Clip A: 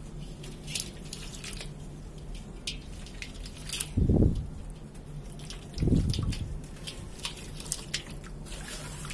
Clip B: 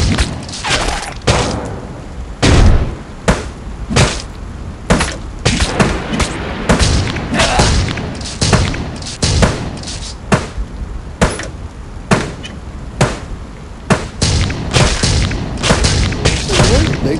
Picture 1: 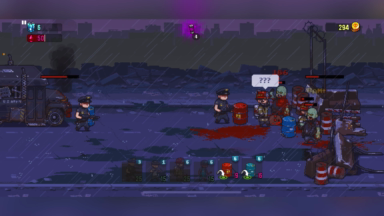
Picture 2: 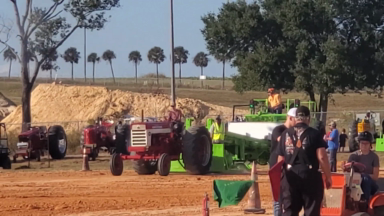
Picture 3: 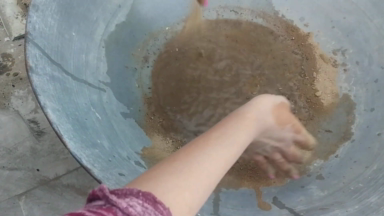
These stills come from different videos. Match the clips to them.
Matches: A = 3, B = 1